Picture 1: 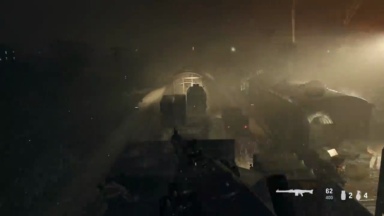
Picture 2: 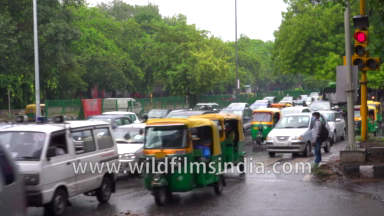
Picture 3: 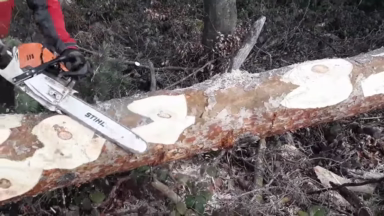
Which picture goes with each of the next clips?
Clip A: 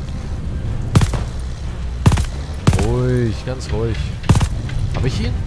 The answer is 1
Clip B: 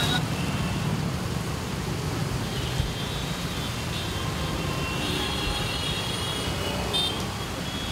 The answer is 2